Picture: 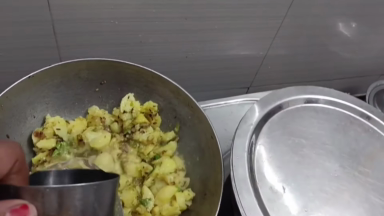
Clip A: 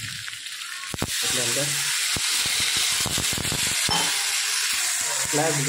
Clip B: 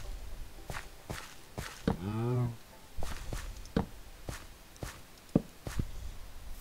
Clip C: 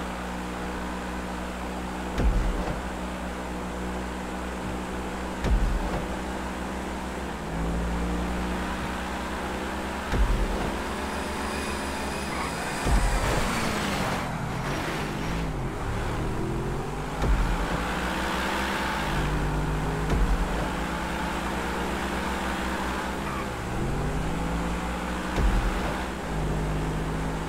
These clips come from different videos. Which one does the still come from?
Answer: A